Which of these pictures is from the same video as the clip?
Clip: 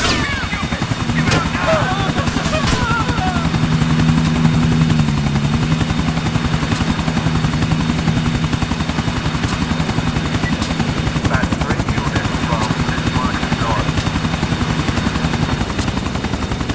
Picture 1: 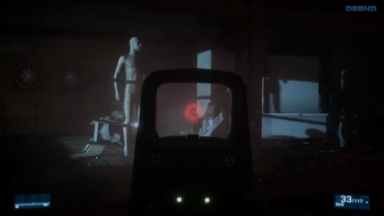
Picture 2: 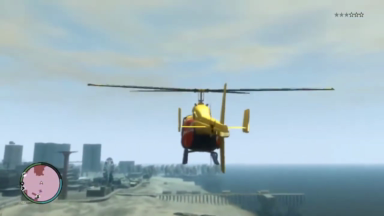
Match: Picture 2